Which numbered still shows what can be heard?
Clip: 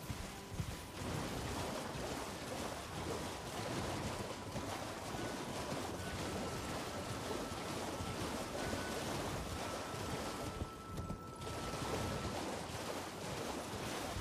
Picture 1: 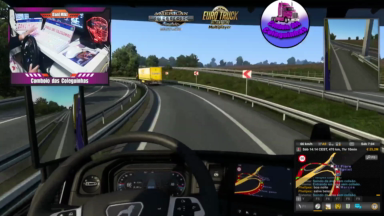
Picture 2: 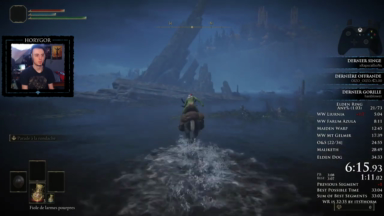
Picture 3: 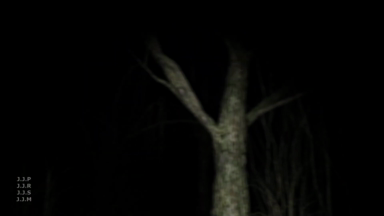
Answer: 2